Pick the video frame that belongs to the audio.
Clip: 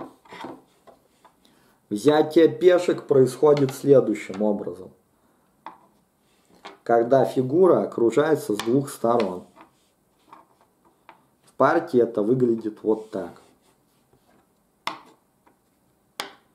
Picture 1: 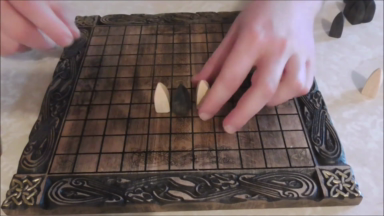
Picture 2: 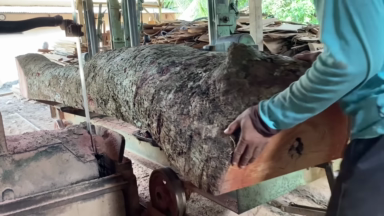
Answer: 1